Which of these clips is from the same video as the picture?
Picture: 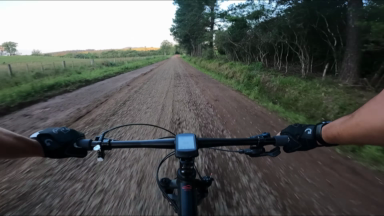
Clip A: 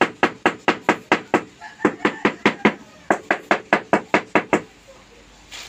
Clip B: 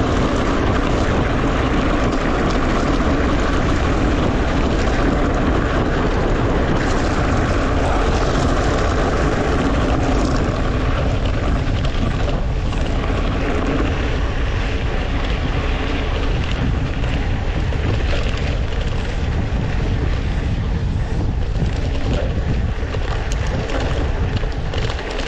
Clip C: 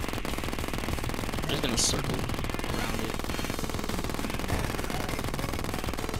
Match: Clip B